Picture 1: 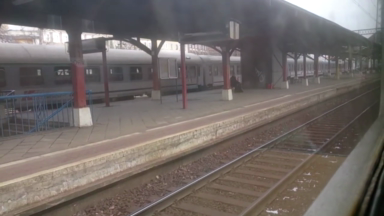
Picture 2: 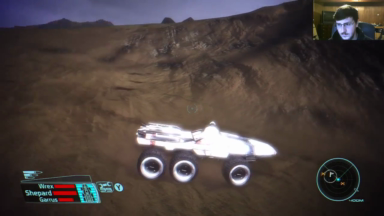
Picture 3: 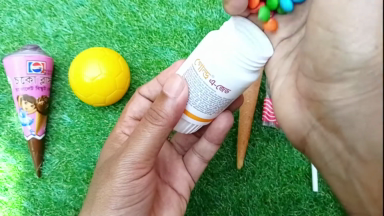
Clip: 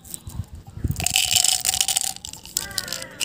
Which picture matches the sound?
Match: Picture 3